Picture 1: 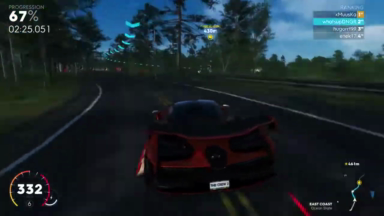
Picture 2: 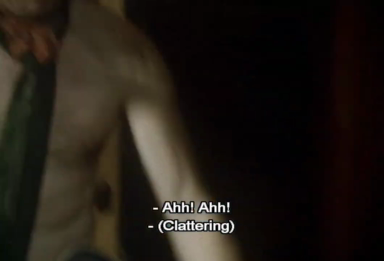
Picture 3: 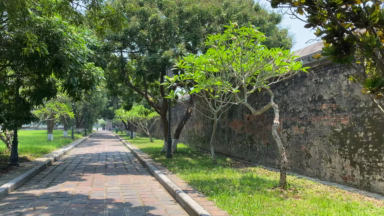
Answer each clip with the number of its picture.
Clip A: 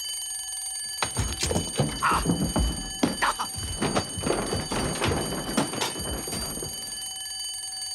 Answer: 2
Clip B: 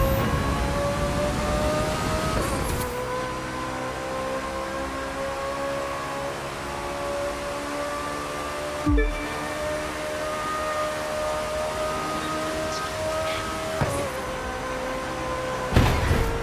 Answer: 1